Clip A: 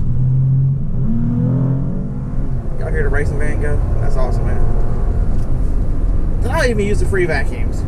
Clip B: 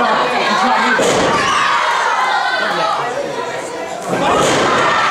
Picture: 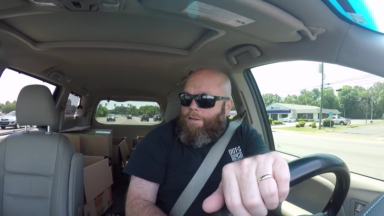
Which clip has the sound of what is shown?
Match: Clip A